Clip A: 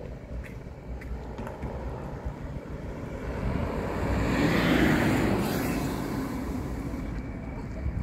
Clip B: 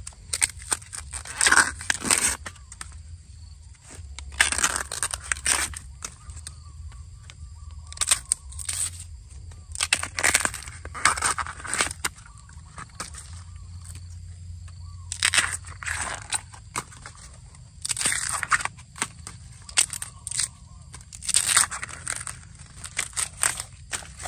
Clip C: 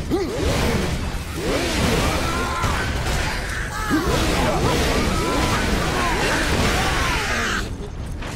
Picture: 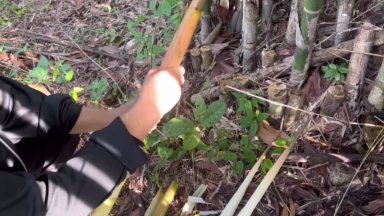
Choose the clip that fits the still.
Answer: B